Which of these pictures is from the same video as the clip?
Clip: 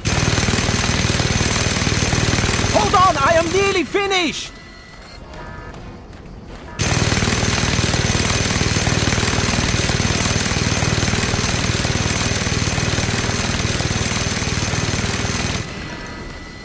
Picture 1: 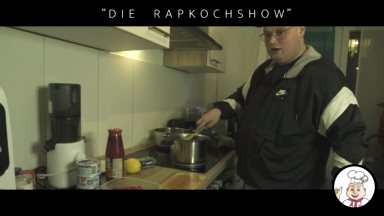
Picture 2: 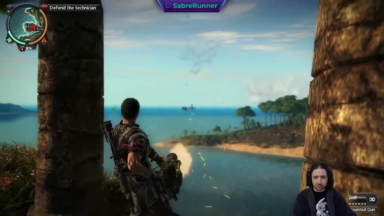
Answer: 2